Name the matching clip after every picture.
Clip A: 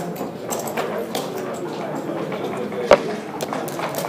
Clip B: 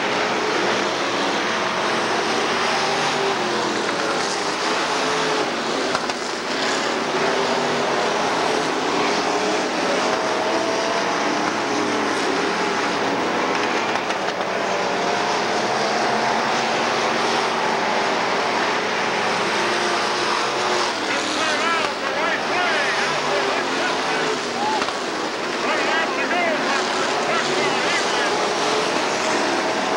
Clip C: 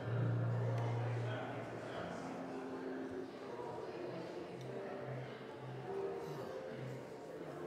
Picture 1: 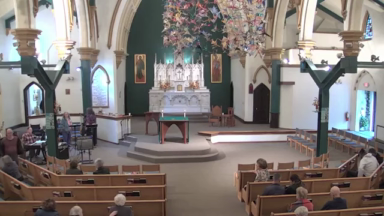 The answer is C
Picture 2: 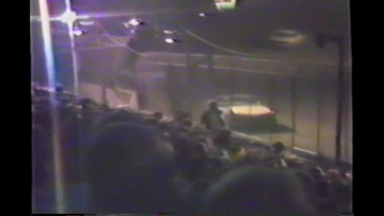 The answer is B